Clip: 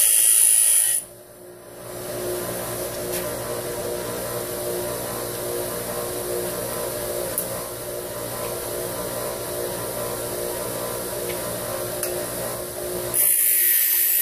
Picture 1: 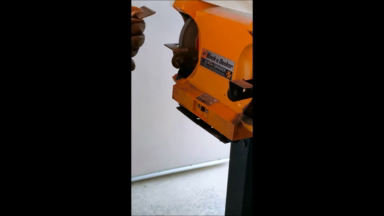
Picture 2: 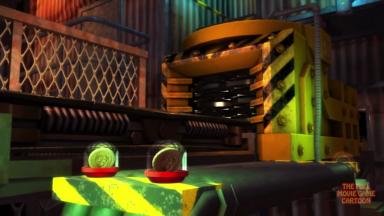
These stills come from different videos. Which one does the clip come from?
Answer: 1